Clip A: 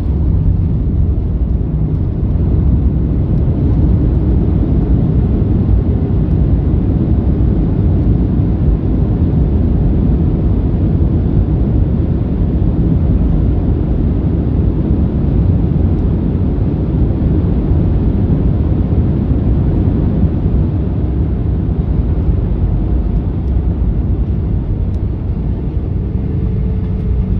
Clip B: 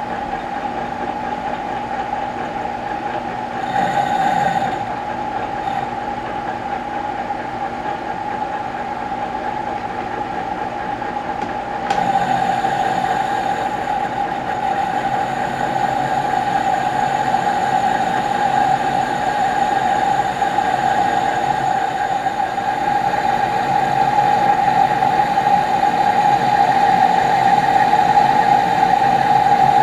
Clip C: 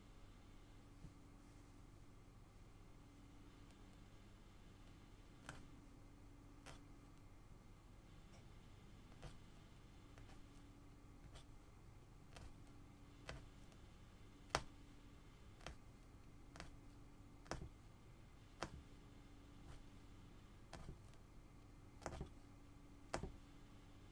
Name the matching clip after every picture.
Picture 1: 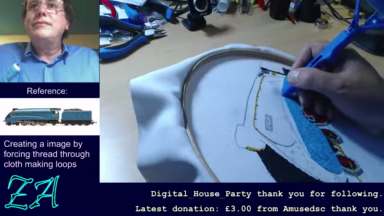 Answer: C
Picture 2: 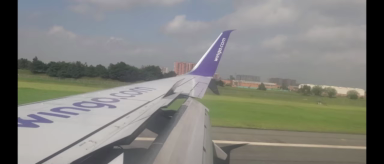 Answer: A